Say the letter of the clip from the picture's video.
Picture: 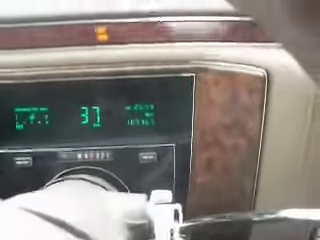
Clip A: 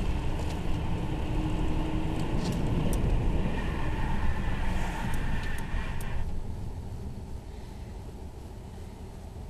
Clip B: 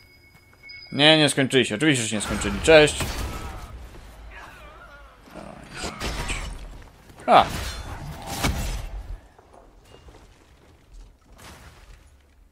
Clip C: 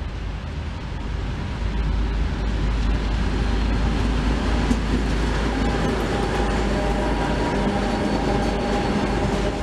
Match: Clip A